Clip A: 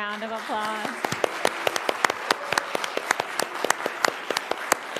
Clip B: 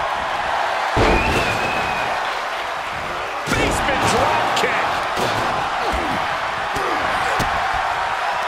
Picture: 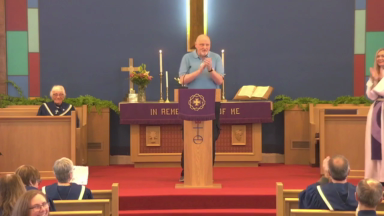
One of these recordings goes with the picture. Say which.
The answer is A